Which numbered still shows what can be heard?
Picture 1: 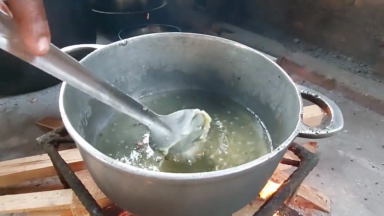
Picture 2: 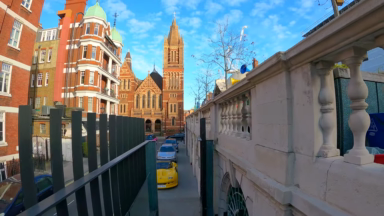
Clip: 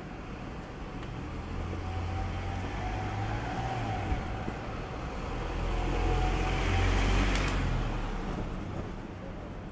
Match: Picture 2